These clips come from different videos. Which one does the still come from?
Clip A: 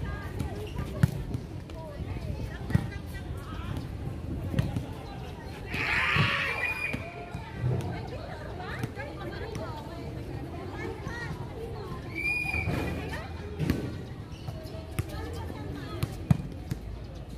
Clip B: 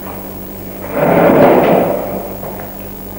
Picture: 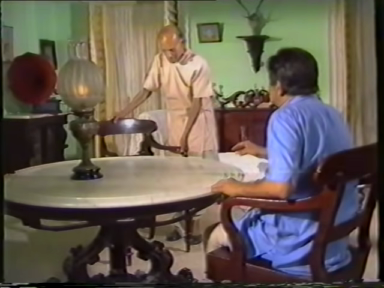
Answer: B